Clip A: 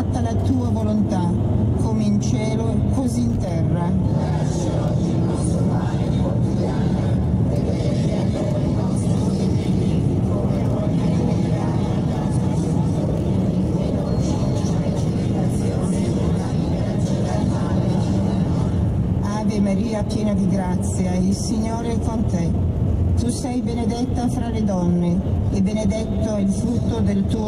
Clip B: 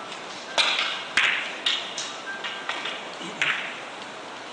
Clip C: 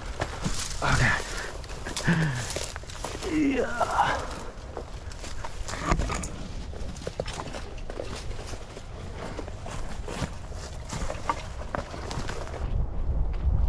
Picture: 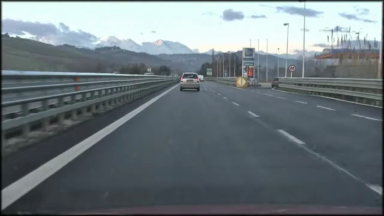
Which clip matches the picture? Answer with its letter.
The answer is A